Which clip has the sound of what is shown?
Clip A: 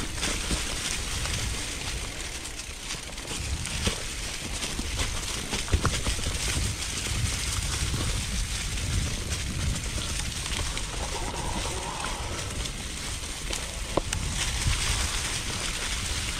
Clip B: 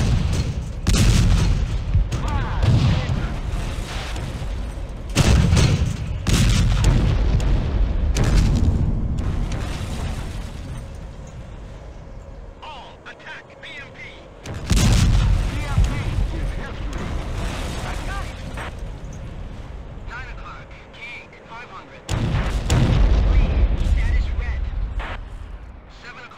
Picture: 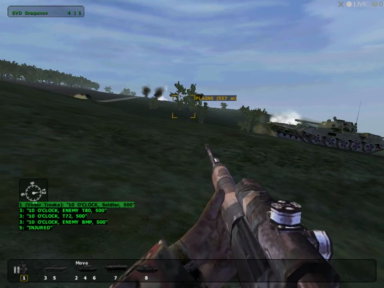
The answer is B